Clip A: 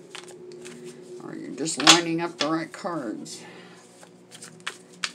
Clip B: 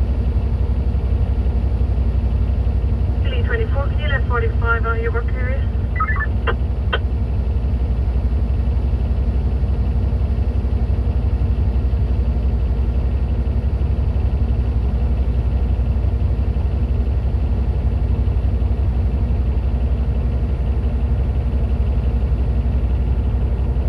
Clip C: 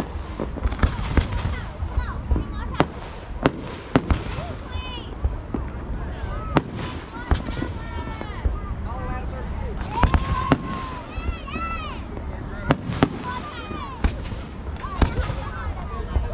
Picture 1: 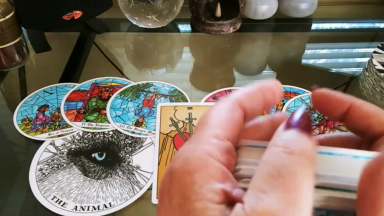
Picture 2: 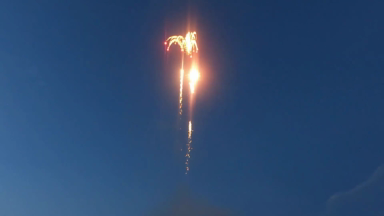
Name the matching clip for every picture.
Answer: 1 A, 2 C